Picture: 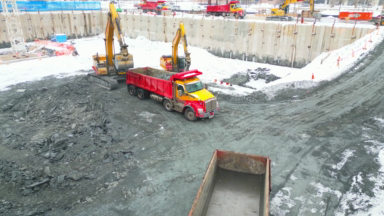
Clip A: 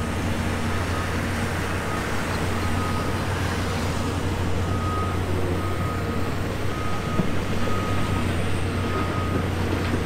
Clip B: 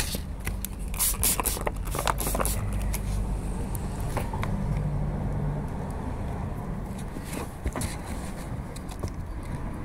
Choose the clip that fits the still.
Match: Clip A